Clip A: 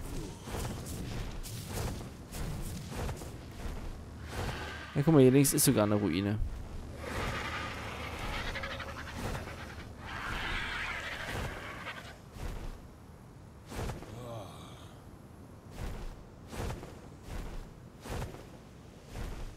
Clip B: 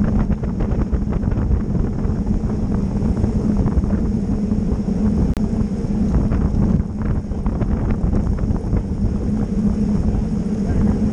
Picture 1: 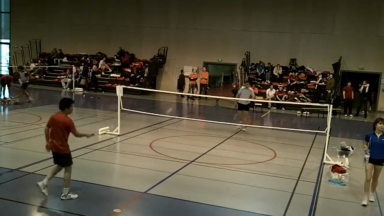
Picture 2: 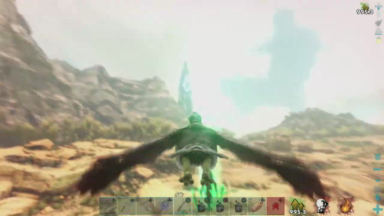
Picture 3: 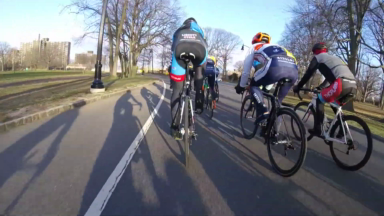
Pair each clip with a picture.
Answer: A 2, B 3